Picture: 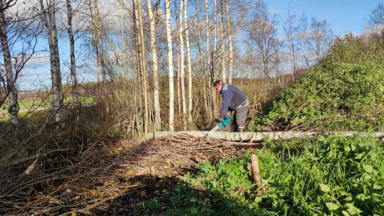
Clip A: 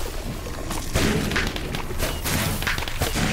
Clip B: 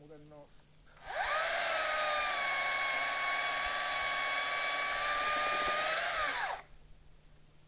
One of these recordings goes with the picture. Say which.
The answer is B